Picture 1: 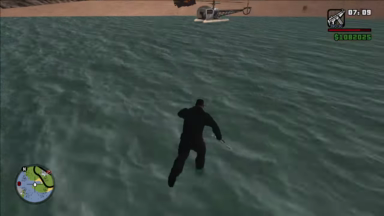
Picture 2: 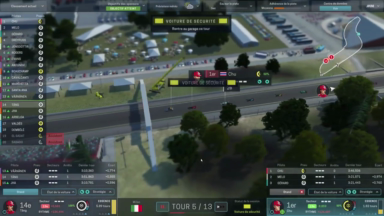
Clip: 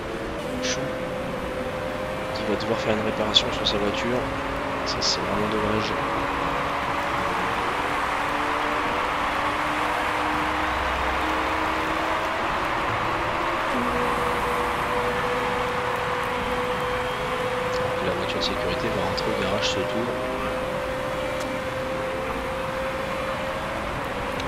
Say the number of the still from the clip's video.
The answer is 2